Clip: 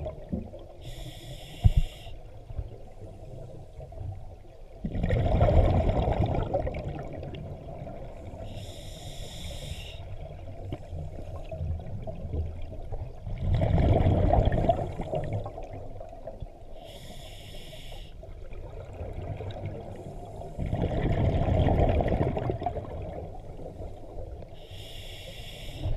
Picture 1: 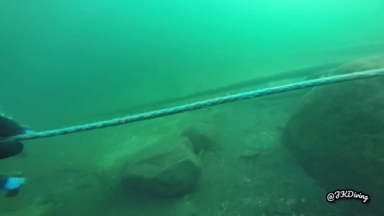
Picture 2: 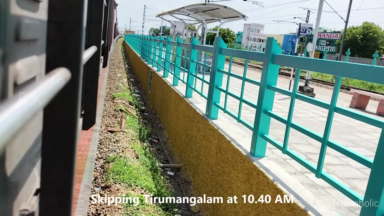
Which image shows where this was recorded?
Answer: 1